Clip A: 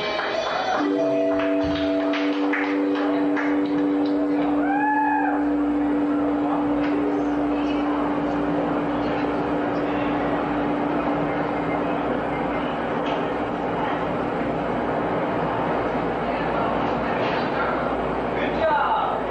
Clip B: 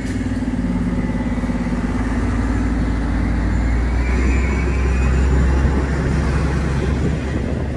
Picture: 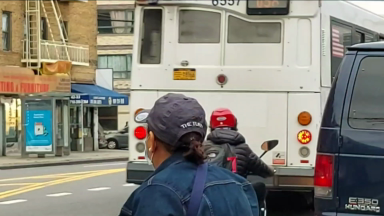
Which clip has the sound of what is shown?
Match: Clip B